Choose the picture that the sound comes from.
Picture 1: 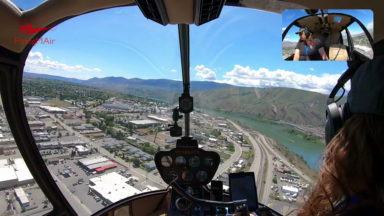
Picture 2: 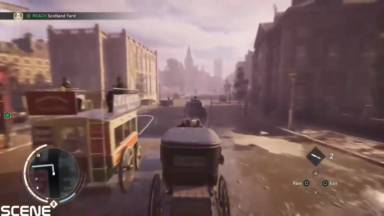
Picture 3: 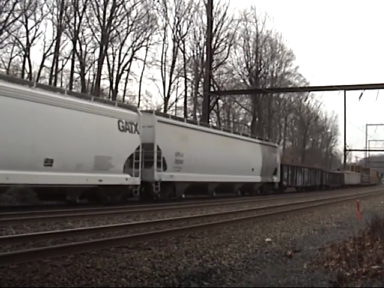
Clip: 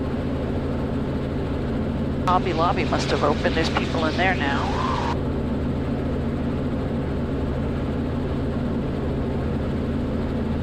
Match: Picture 1